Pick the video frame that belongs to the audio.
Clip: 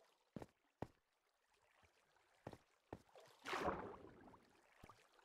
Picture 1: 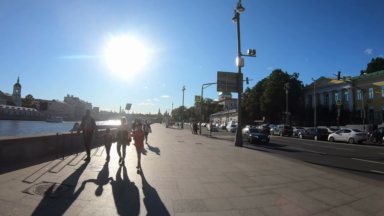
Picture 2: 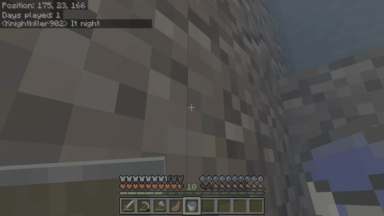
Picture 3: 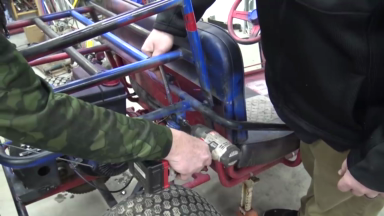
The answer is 2